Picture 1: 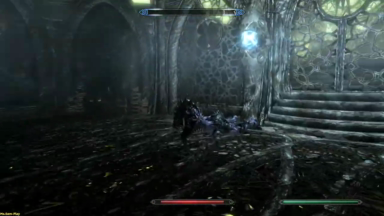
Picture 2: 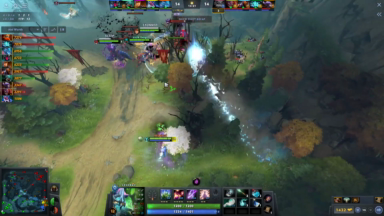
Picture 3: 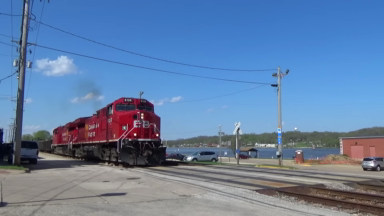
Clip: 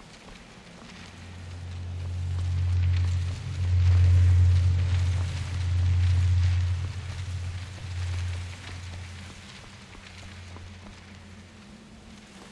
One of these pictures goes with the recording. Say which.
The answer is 1